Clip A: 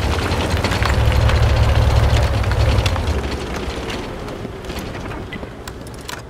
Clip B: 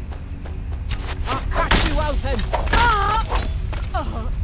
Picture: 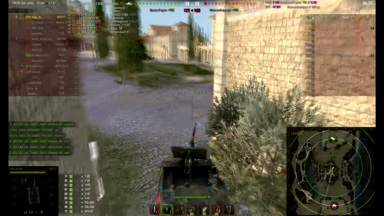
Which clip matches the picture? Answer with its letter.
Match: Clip A